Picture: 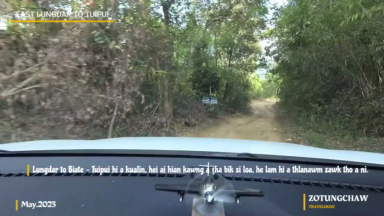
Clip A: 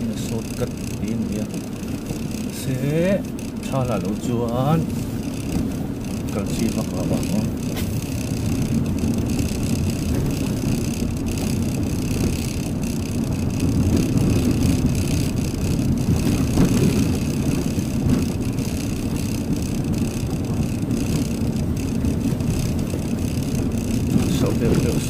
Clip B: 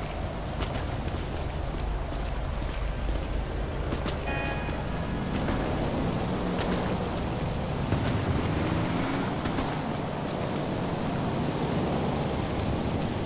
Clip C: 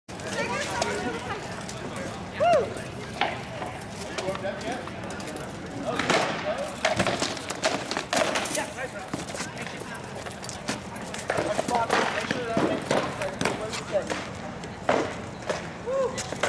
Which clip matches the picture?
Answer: A